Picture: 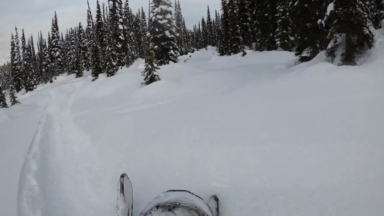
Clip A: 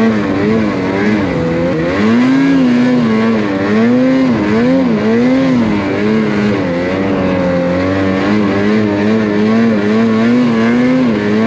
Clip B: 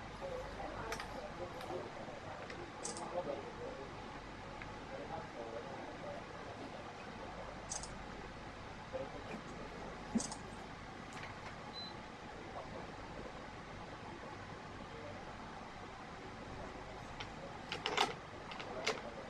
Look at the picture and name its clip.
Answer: A